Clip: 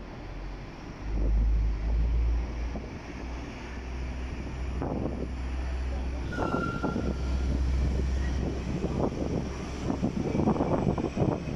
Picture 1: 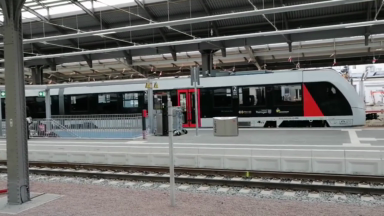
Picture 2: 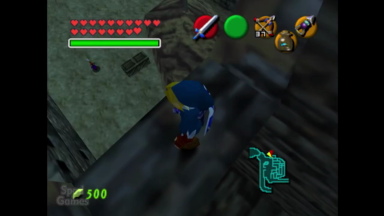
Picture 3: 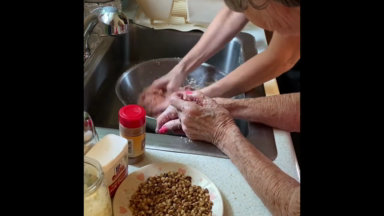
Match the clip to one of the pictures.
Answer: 1